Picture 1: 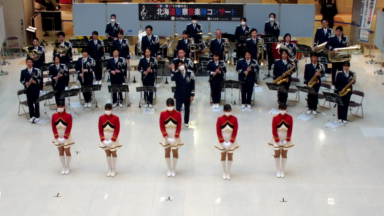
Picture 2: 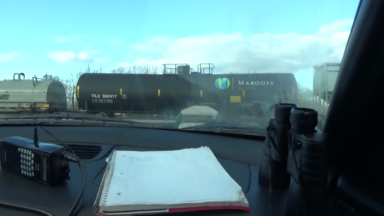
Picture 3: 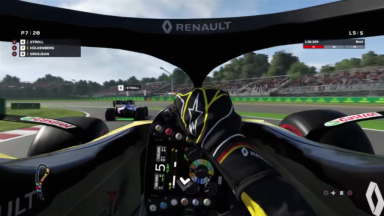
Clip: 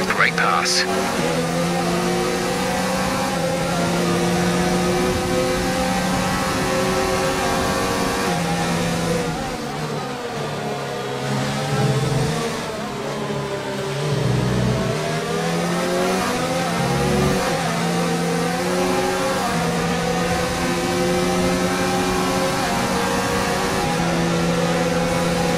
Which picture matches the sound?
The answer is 3